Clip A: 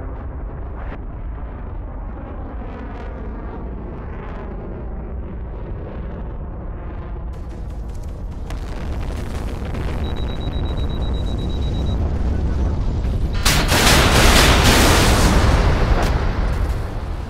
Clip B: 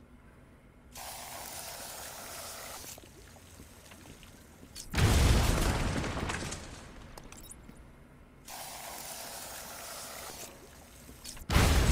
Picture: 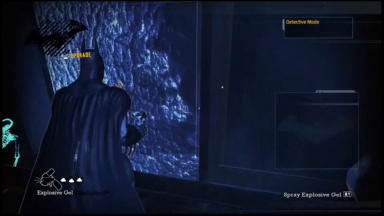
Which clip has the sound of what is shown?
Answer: B